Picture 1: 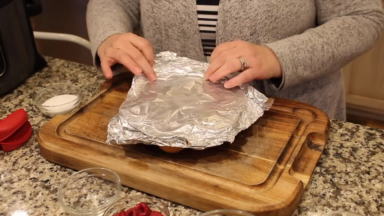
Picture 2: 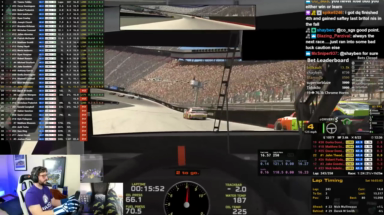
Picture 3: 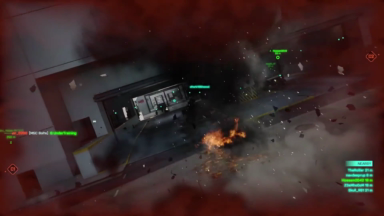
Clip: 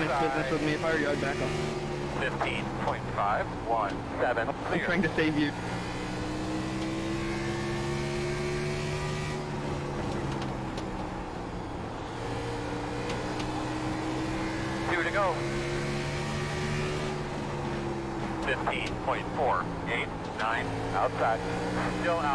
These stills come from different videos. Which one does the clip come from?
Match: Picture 2